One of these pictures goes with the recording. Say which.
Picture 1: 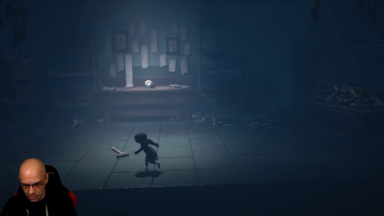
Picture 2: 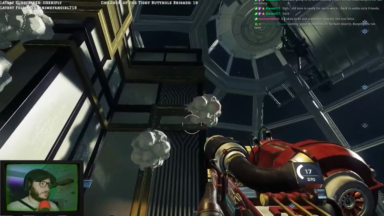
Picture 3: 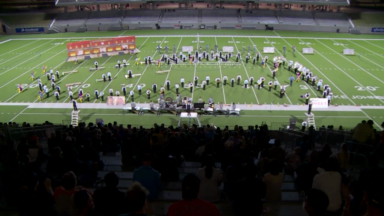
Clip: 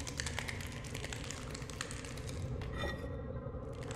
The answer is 1